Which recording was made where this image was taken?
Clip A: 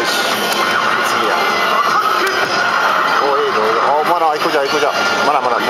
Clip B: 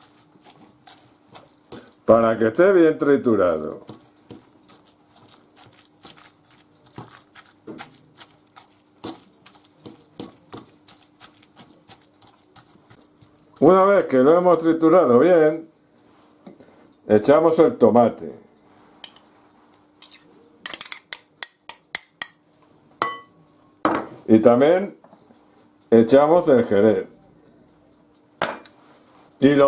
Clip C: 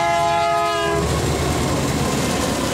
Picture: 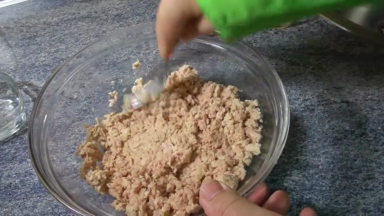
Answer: B